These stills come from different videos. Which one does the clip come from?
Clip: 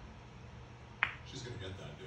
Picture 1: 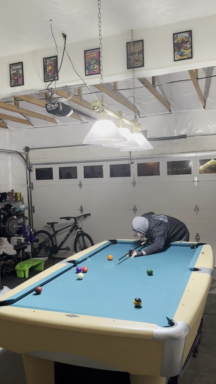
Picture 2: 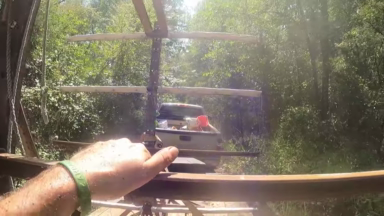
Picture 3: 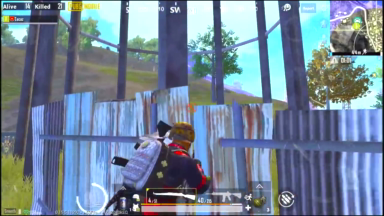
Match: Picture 1